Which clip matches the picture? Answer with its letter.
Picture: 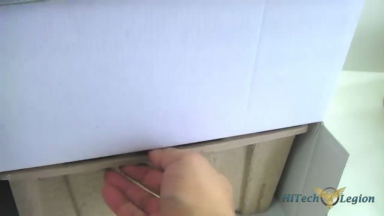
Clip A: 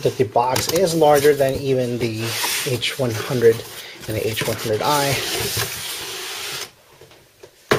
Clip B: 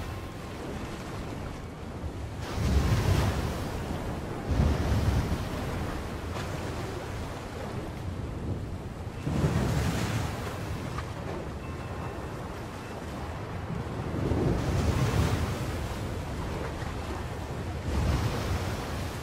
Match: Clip A